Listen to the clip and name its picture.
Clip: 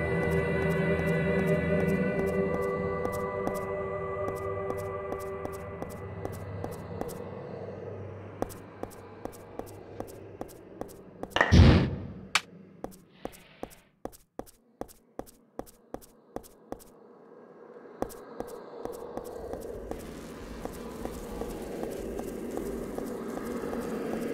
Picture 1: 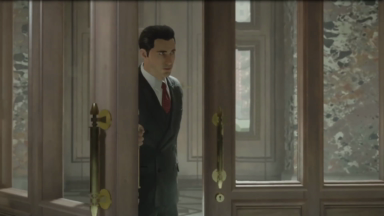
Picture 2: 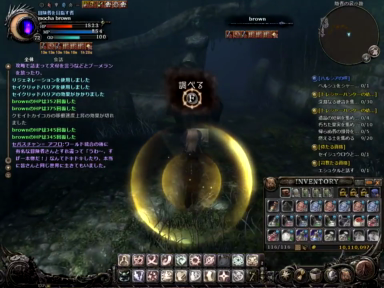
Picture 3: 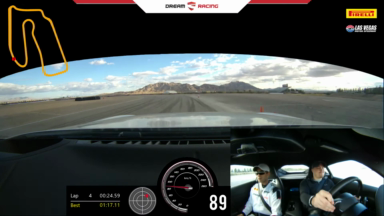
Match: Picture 2